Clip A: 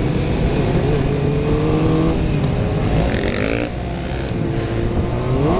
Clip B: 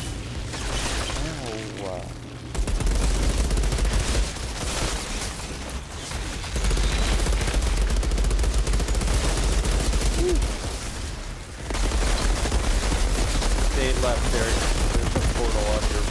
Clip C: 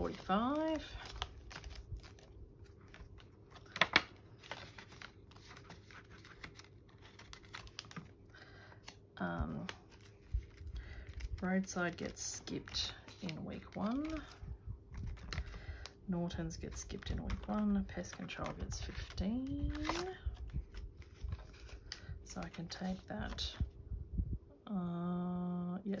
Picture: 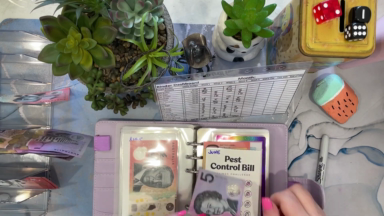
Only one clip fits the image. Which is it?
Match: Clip C